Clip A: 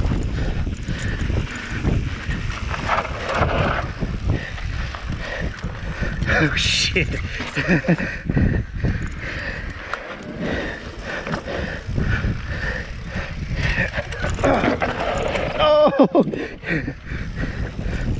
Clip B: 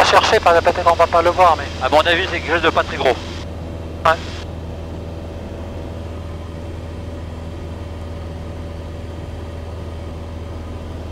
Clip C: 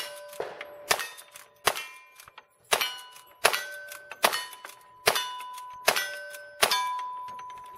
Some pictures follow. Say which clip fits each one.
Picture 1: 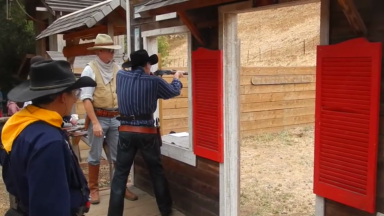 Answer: C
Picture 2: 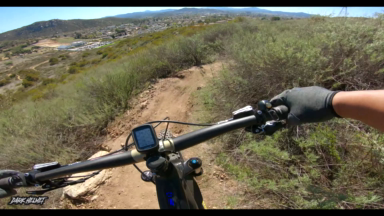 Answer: A